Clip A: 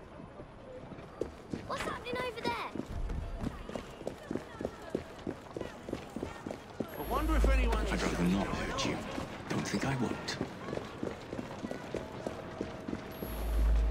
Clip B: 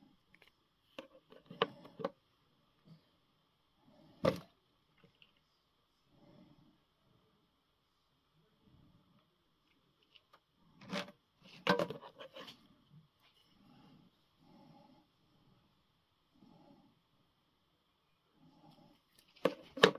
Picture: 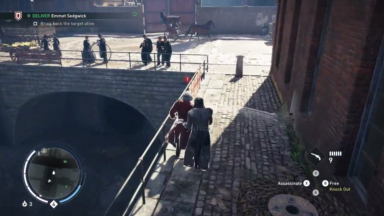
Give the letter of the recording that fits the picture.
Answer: A